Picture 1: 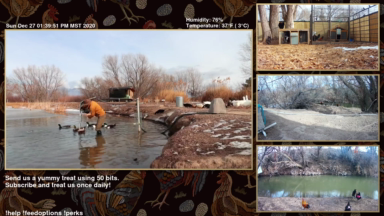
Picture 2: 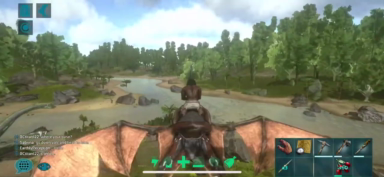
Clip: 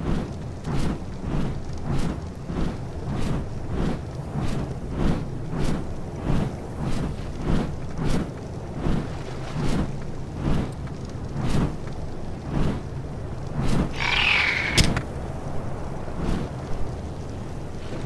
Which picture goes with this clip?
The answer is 2